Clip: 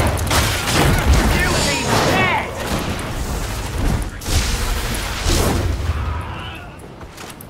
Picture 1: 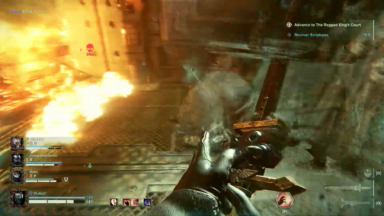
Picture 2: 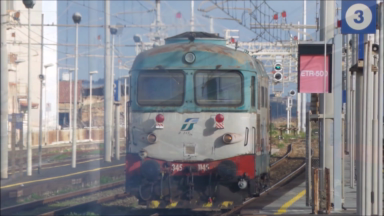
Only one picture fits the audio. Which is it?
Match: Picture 1